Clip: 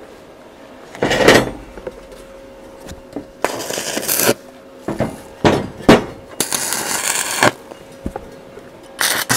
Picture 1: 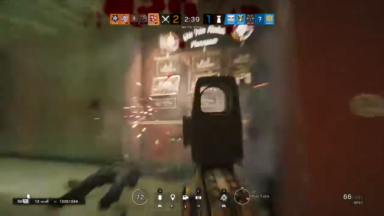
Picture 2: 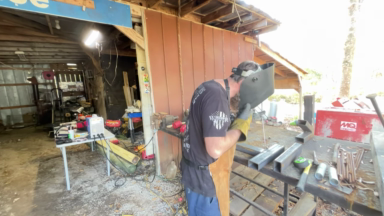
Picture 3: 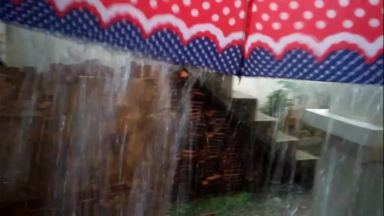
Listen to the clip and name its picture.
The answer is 2